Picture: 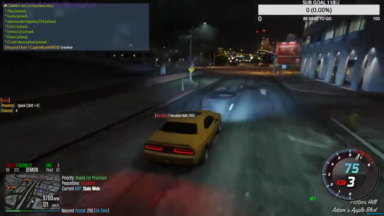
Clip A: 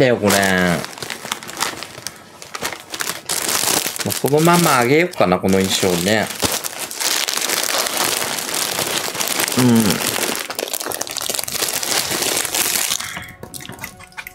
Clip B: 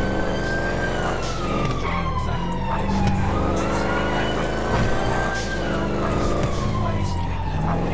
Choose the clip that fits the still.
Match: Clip B